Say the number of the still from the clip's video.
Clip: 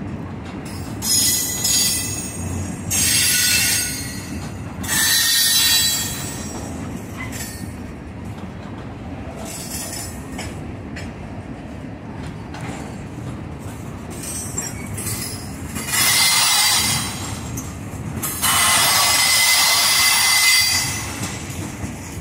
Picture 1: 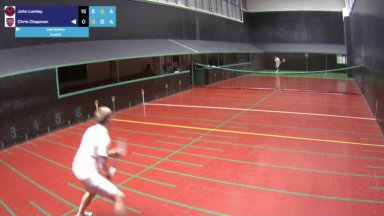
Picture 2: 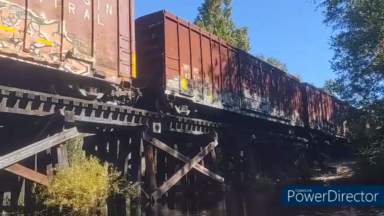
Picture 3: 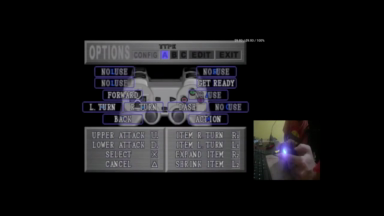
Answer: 2